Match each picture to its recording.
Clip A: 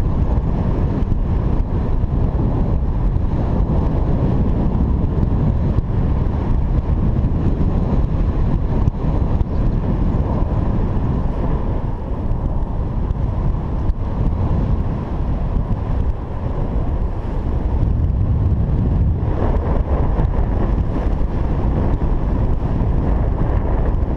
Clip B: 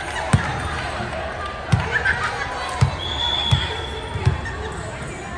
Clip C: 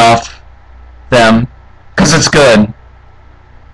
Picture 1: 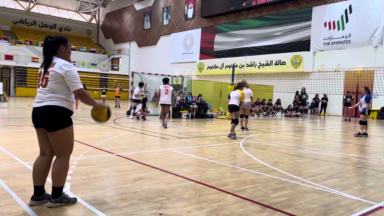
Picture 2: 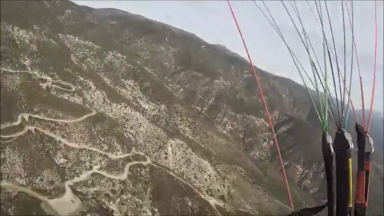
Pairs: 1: B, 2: A